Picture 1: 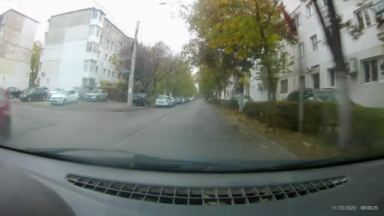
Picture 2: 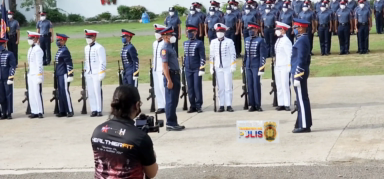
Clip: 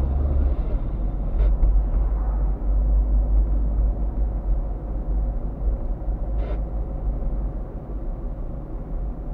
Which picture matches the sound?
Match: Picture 1